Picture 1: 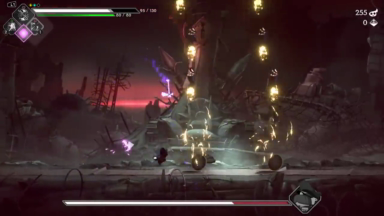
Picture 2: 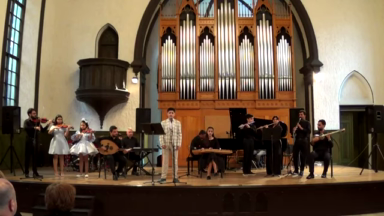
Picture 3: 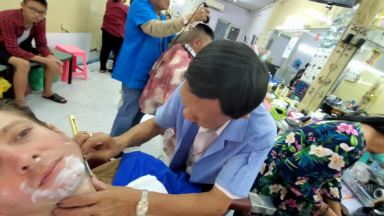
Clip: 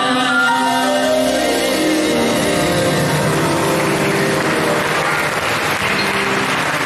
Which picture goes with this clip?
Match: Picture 2